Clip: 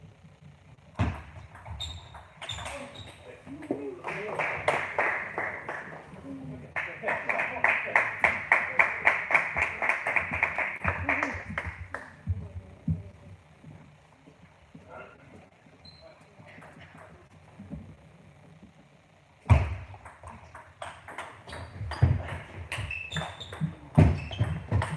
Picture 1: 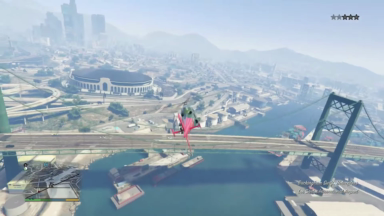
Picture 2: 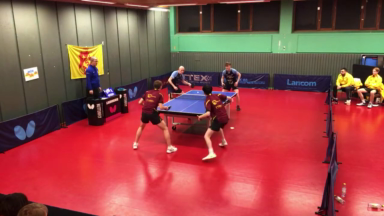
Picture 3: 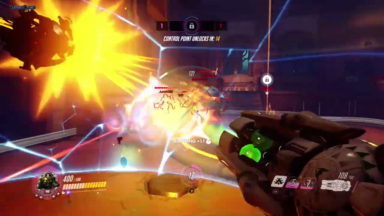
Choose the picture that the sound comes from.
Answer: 2